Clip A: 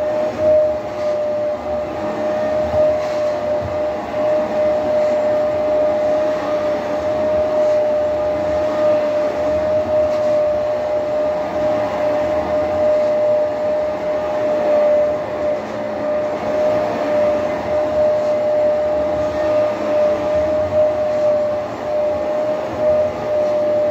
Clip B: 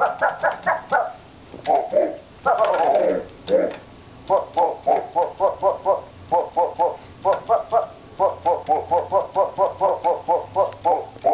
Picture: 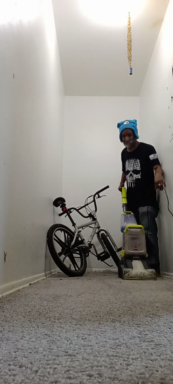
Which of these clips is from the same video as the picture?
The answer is A